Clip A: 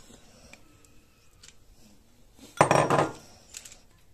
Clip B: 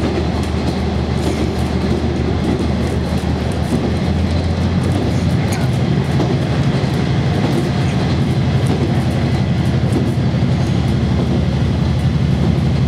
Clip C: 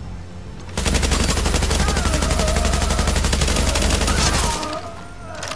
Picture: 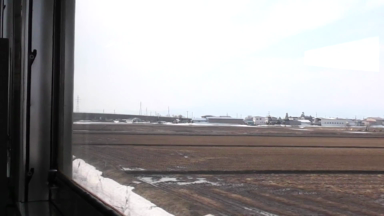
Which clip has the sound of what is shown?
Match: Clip B